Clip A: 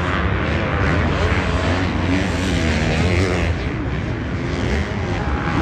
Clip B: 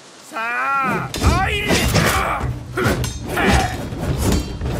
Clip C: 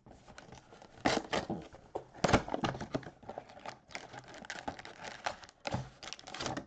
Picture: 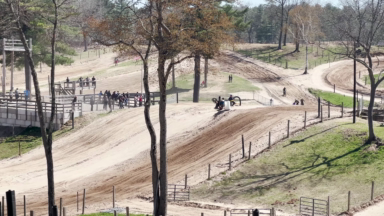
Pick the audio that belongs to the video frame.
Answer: A